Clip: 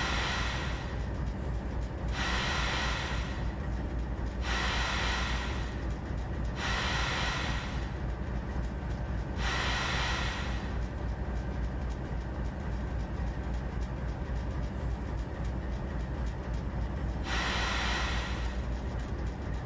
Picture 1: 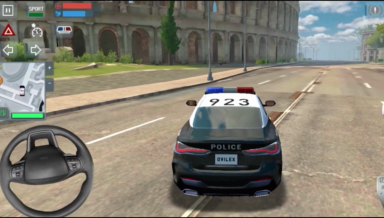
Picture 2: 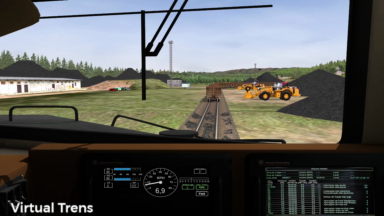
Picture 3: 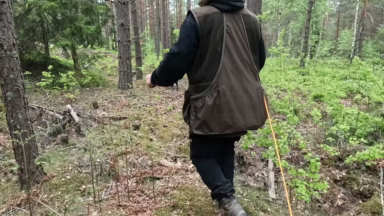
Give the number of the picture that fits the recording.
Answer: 2